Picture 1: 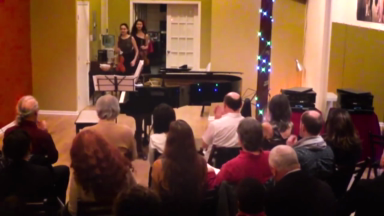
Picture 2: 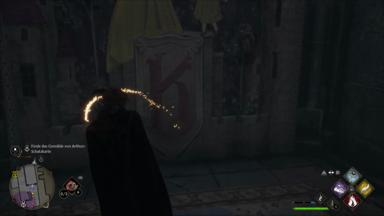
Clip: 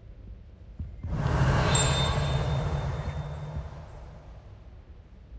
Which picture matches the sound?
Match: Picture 2